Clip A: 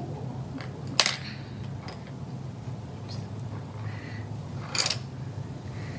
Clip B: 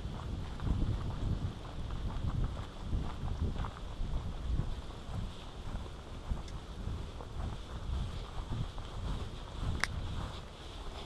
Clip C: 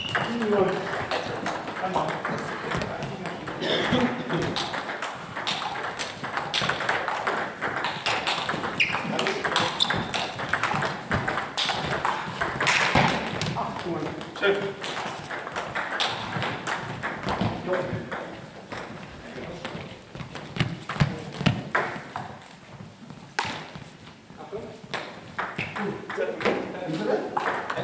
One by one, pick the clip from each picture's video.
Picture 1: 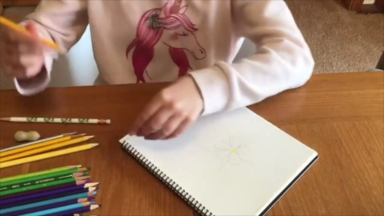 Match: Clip A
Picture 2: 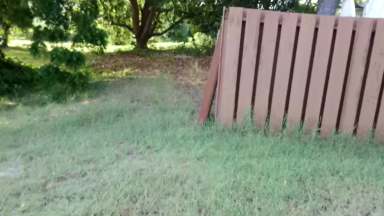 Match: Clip B